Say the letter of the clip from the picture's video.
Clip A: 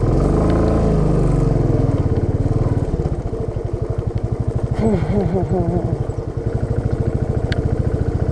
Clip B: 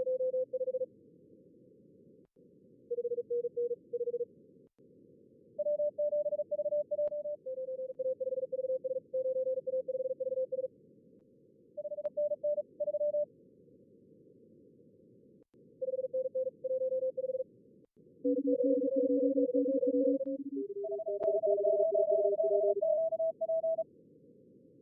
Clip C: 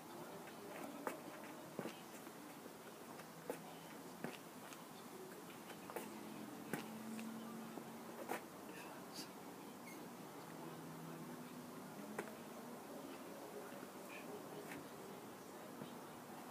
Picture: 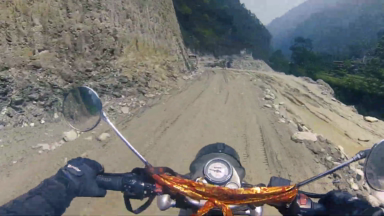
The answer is A